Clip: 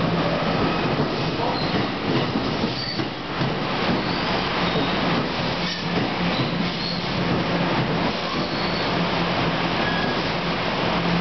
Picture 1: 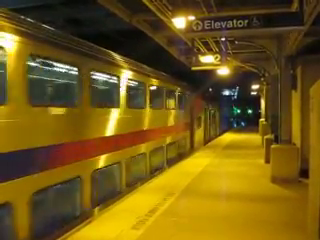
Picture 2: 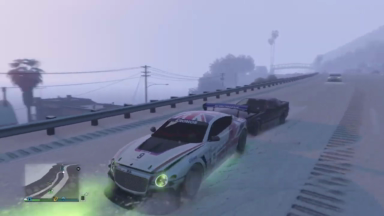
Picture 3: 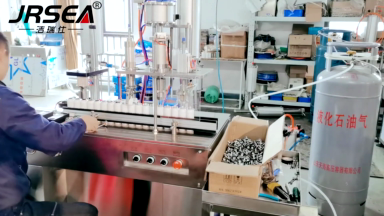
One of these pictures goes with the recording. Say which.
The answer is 1